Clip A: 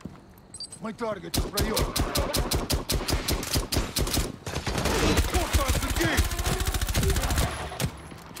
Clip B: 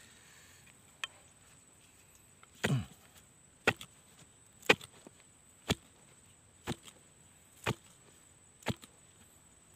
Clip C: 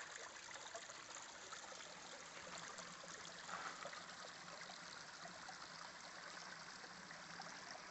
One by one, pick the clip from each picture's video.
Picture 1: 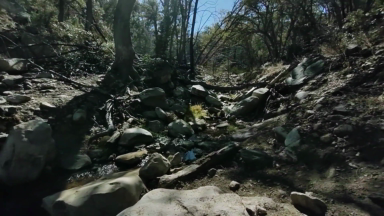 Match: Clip C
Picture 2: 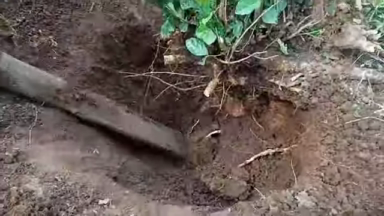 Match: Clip B